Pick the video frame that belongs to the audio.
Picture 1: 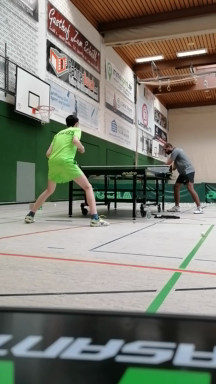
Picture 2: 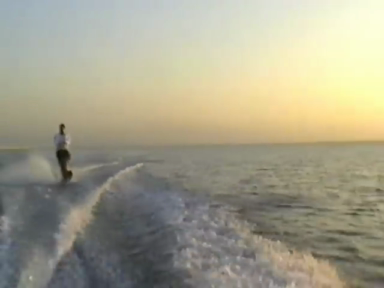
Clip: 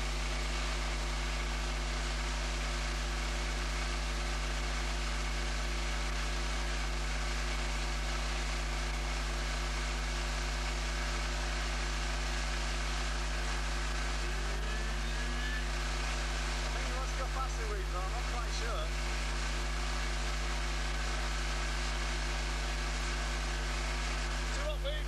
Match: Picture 2